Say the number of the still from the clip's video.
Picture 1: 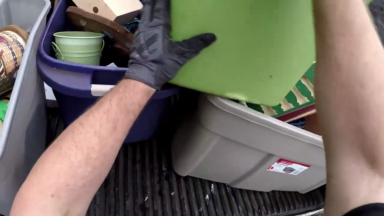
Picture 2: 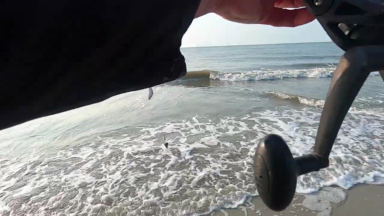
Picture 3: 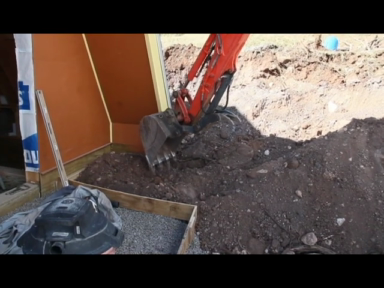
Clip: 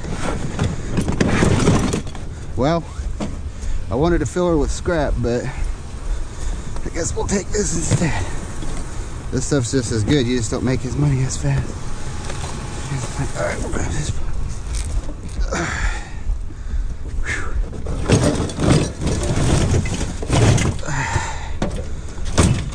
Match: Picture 1